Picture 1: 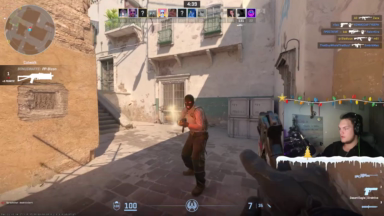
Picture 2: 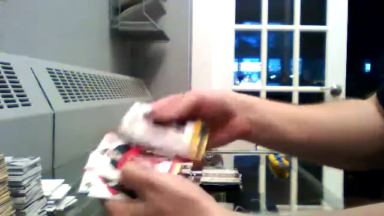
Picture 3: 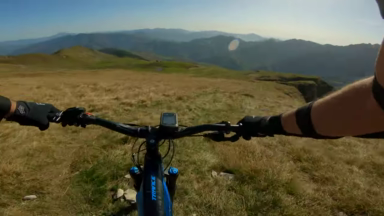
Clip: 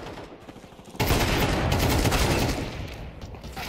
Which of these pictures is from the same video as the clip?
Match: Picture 1